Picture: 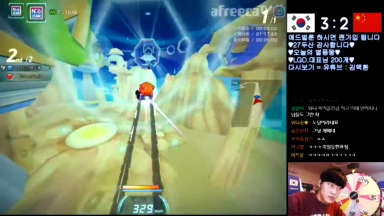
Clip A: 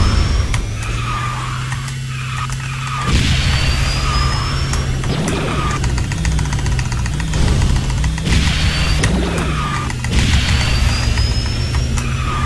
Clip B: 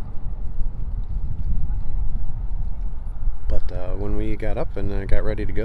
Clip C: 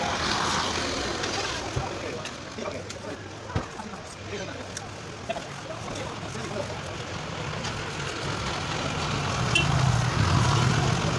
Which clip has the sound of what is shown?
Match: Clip A